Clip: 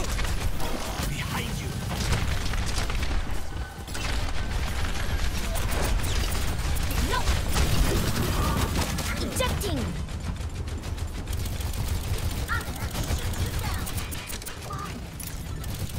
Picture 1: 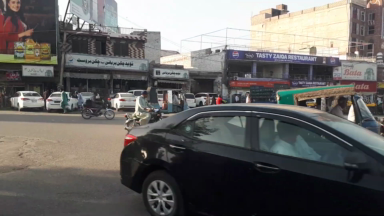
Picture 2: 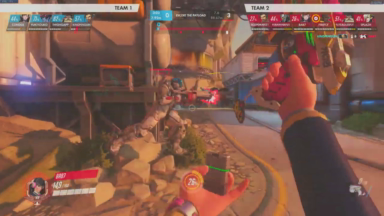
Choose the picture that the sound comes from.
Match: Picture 2